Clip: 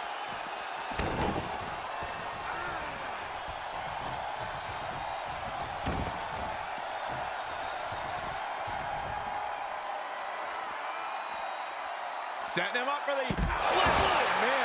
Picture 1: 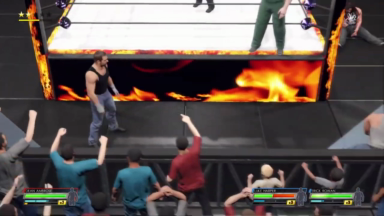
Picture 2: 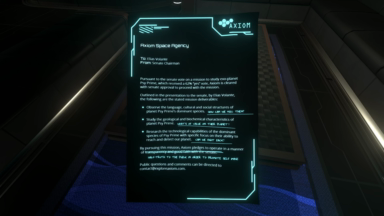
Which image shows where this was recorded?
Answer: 1